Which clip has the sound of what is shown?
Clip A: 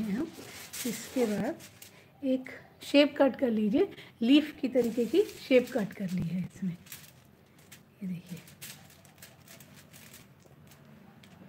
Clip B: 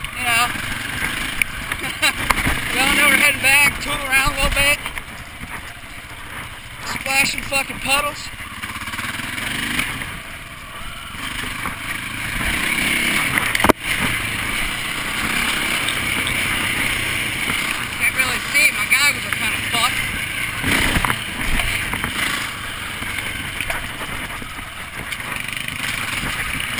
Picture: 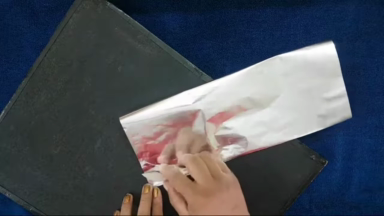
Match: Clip A